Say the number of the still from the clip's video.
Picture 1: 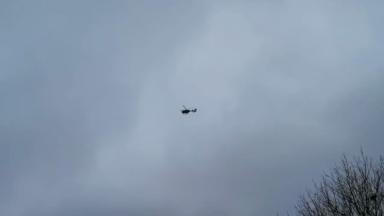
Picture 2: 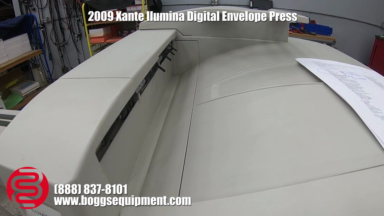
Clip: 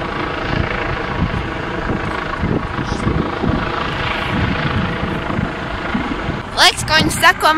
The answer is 1